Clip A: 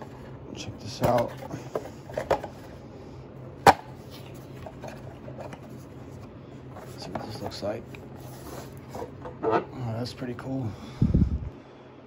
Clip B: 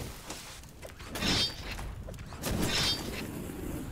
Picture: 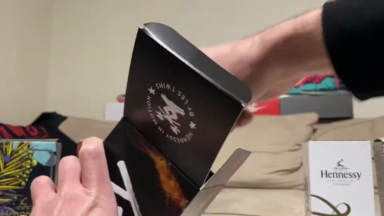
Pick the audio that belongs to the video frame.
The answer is A